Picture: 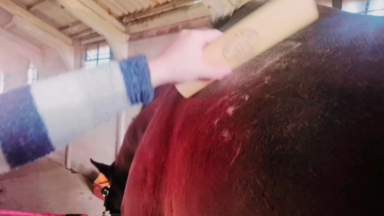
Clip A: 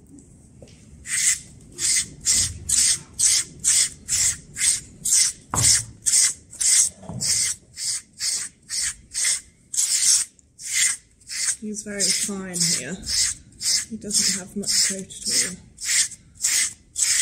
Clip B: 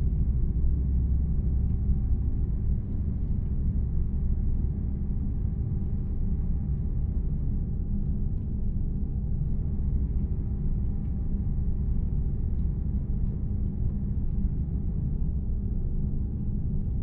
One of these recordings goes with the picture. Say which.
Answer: A